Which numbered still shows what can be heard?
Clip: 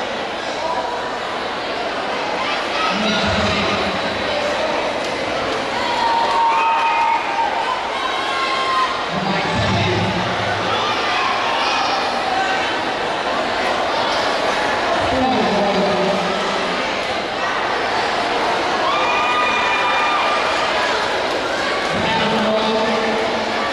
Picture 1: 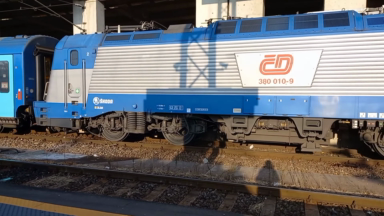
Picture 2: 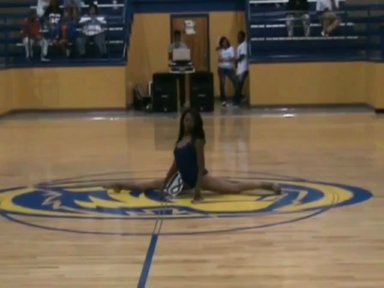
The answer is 2